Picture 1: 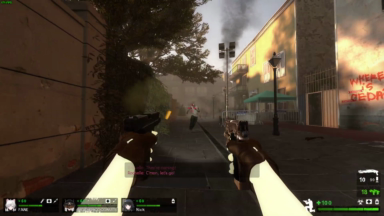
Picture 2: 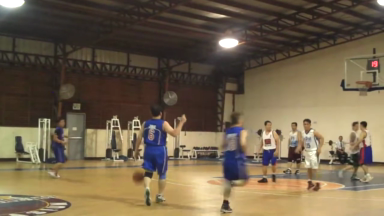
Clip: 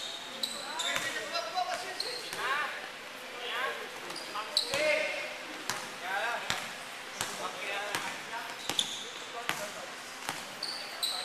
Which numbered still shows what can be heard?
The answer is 2